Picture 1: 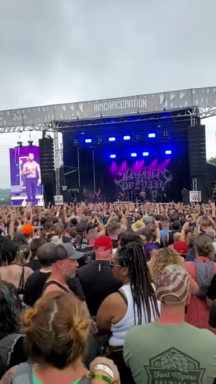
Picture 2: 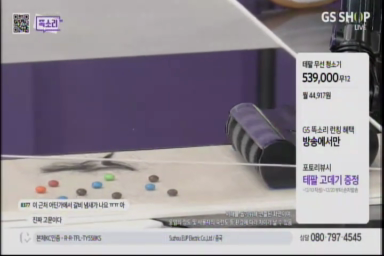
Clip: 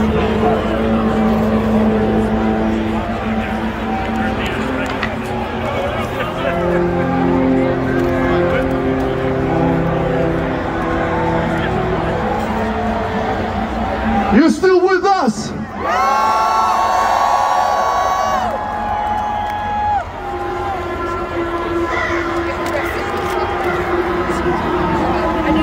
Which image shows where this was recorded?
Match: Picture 1